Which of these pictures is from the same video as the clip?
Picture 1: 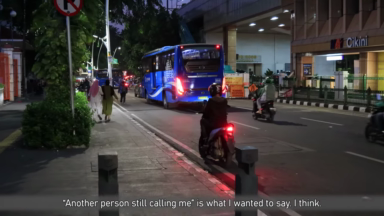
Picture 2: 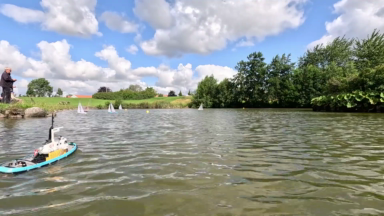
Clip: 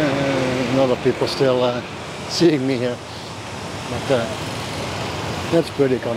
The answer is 1